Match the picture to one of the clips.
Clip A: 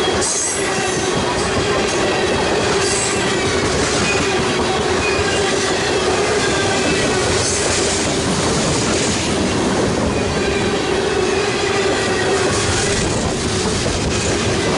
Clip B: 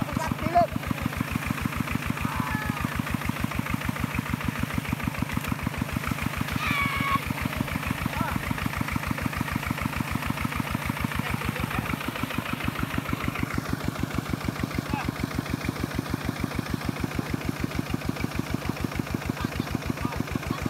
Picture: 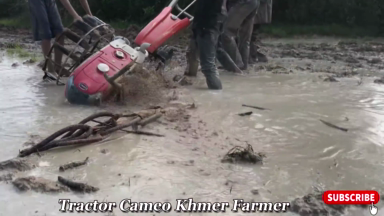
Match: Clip B